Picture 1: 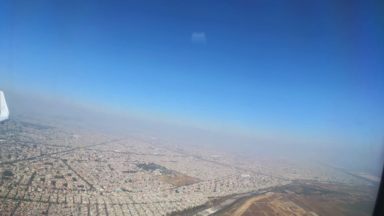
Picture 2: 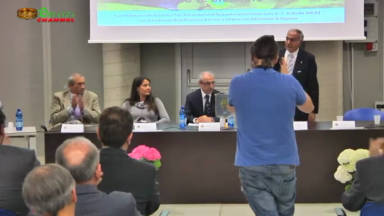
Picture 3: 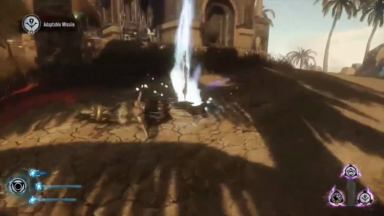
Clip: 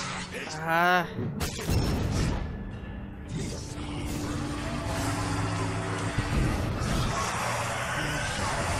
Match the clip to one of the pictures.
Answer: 3